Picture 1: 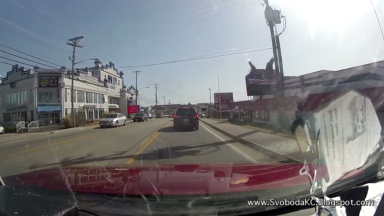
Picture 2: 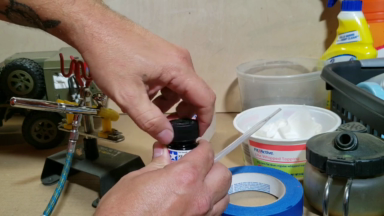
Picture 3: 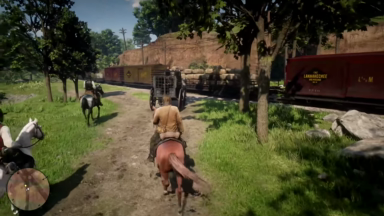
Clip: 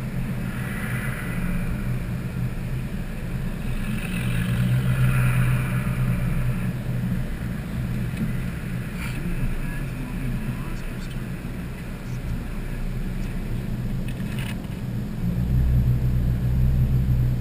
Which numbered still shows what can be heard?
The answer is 1